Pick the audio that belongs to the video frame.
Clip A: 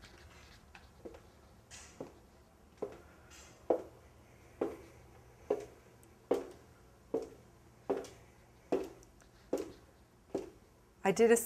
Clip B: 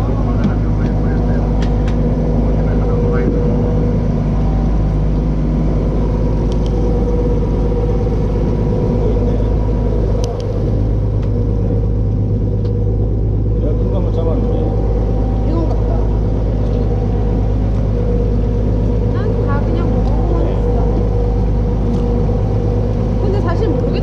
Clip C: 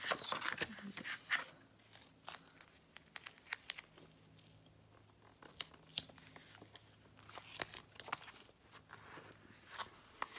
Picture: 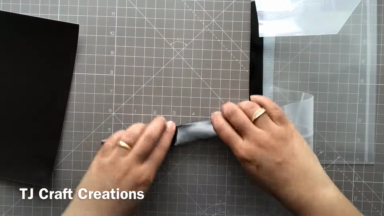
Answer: C